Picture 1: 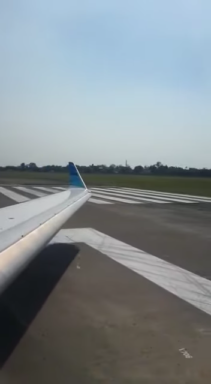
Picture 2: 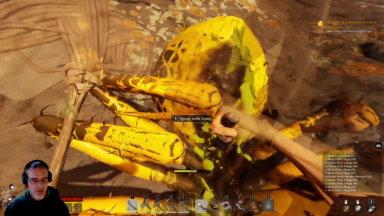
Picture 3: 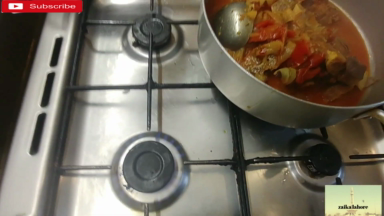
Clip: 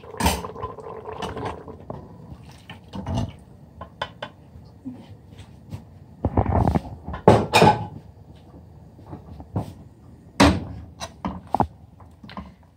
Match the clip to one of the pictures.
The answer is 3